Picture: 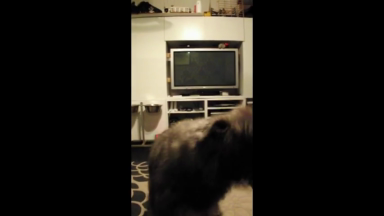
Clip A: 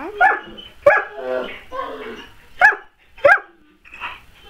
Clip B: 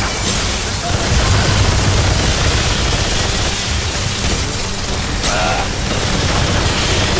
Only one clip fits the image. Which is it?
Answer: A